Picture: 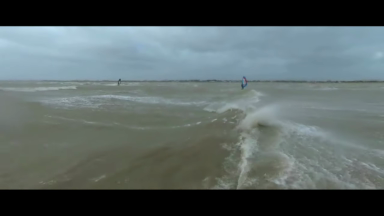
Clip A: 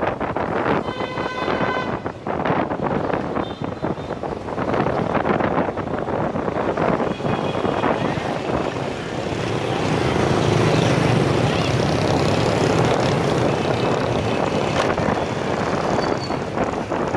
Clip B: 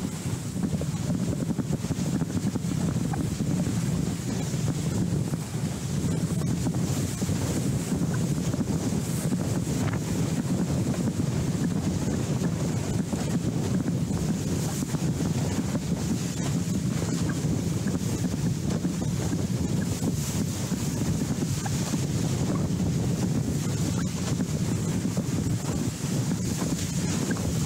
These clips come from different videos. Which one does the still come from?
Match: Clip B